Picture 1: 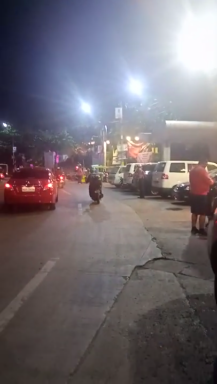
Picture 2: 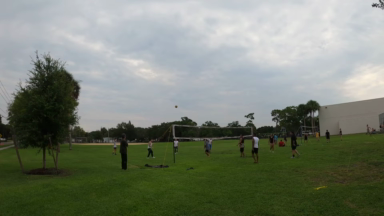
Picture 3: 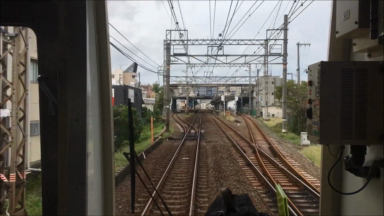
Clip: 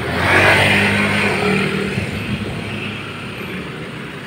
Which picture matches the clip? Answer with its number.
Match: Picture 1